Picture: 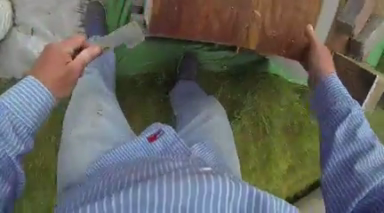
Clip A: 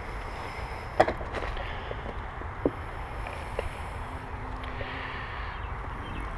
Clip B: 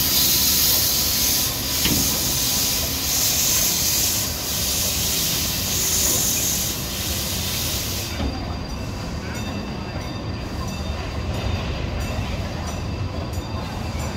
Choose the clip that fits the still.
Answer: A